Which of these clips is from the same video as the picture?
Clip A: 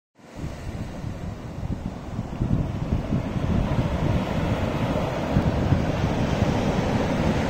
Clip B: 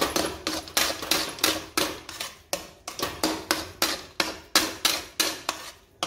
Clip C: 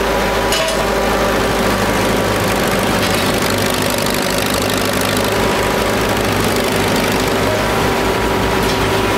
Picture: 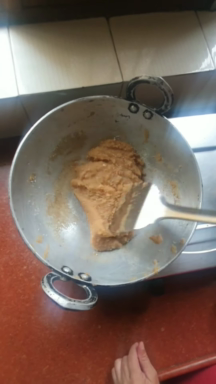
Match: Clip B